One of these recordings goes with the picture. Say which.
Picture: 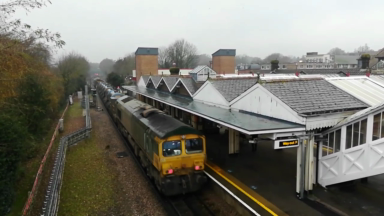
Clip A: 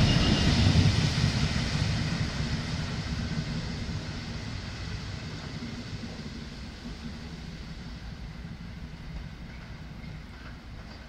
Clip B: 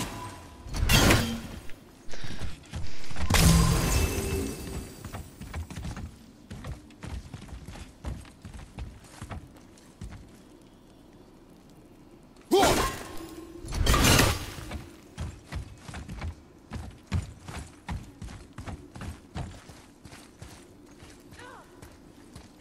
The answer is A